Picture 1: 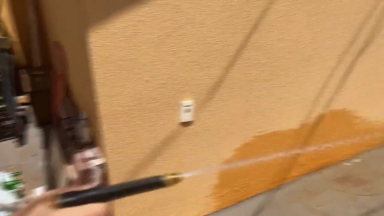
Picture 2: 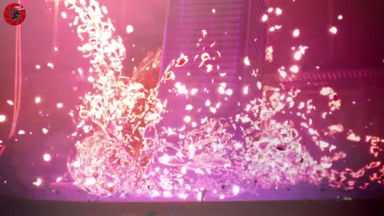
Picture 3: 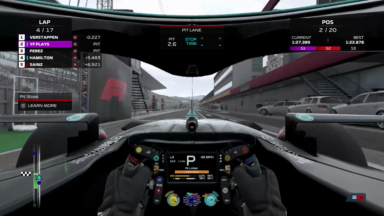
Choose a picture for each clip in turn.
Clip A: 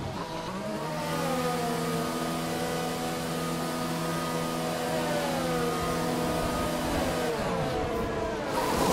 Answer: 3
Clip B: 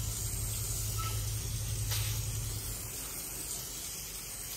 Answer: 1